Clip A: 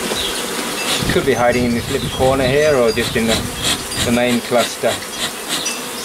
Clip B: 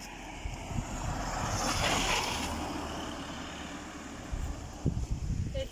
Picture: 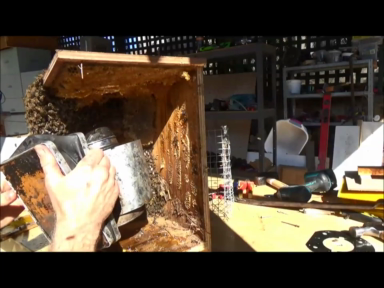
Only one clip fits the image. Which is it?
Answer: A